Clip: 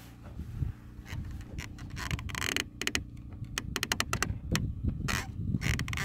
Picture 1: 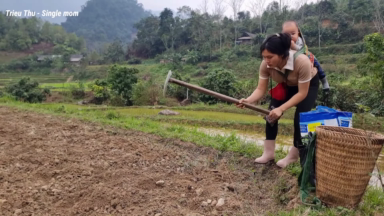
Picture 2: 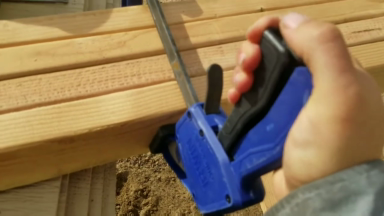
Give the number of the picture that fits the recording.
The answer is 2